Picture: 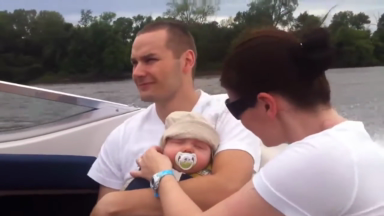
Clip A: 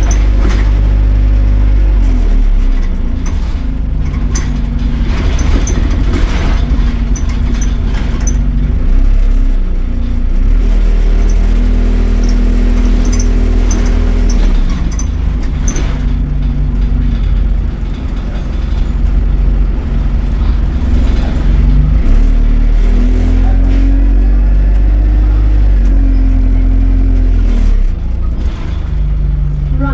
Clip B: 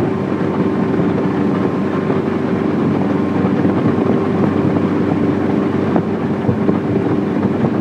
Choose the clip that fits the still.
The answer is B